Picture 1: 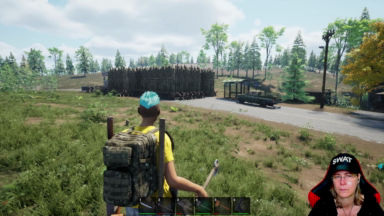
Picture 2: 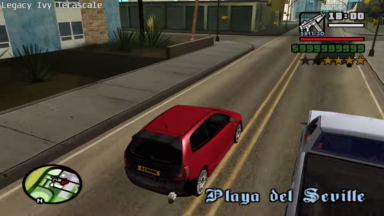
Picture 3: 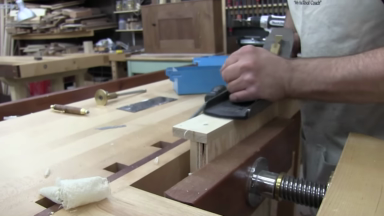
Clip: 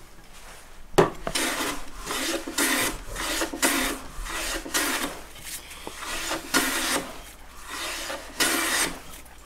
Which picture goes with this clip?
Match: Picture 3